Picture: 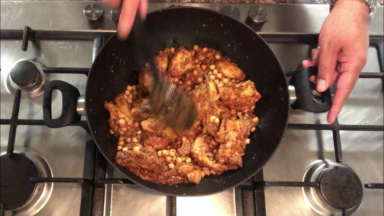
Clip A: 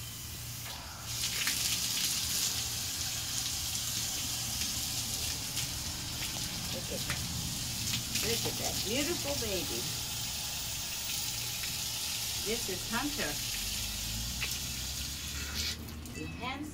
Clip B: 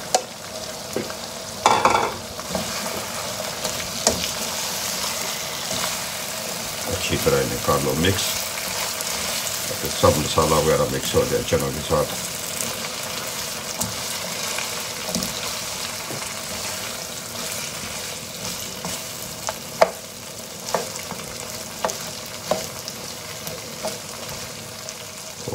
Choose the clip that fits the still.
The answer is B